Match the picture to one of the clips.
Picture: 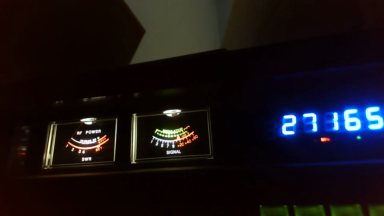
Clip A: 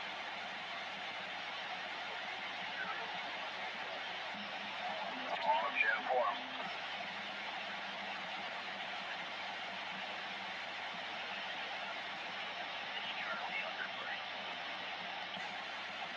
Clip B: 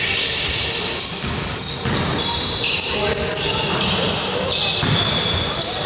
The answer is A